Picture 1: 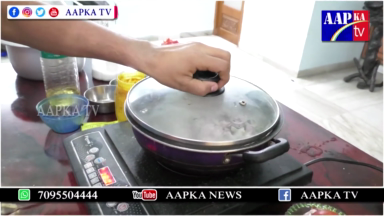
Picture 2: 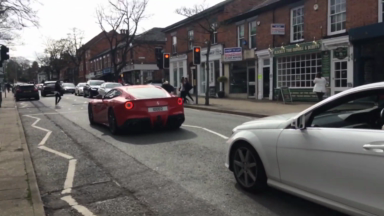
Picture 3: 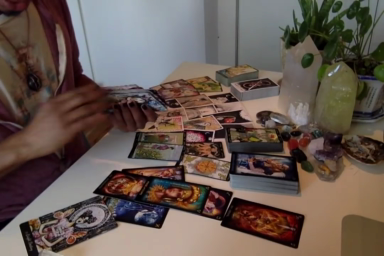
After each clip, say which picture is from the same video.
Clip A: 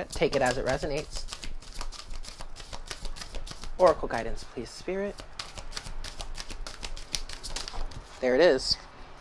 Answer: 3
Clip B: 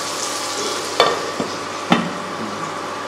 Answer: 1